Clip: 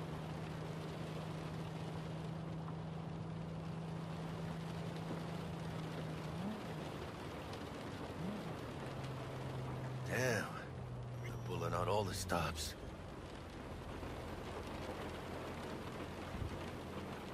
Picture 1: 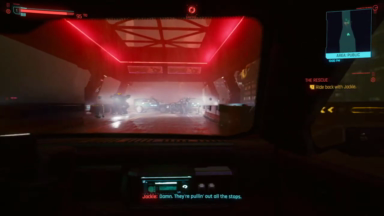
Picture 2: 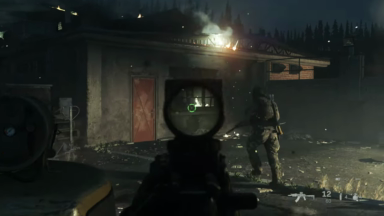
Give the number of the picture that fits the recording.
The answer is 1